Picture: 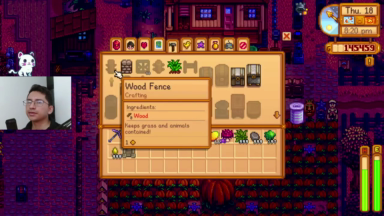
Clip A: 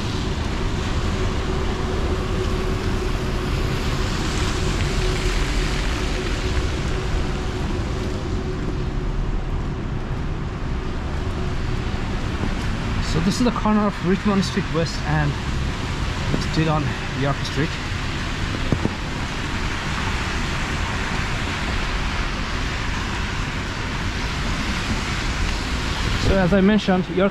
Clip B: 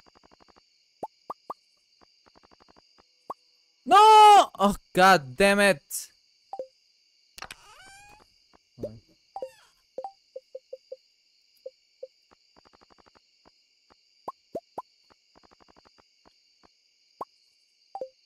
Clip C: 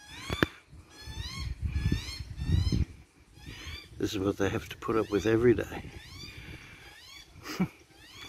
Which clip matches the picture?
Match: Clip B